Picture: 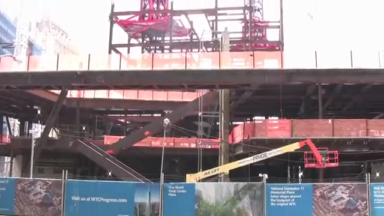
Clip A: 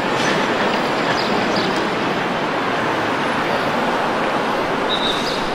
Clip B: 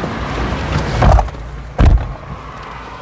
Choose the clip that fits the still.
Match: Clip A